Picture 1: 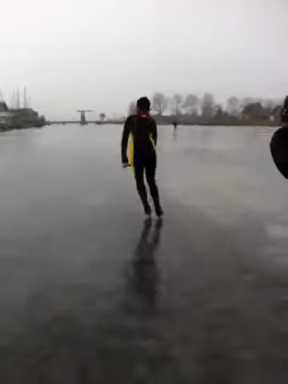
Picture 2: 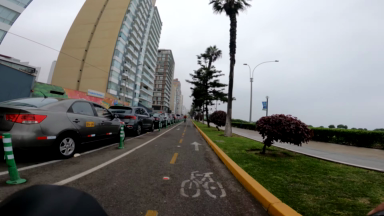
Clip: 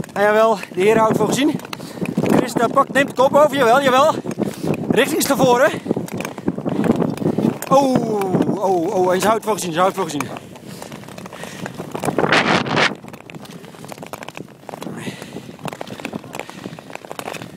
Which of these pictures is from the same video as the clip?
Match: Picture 1